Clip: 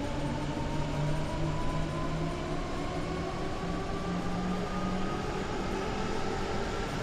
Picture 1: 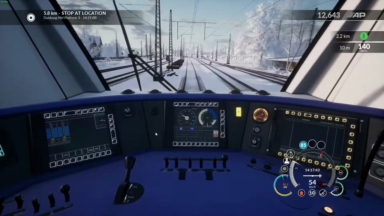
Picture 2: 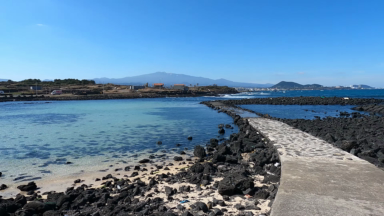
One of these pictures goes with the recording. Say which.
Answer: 1